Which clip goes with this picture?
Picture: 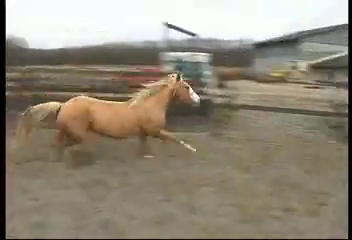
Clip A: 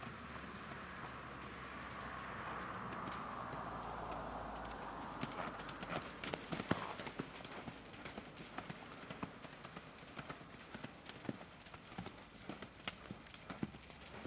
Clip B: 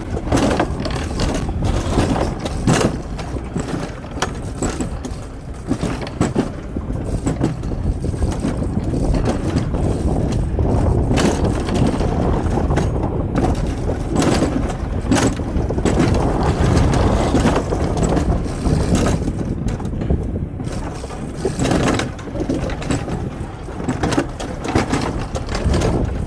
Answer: A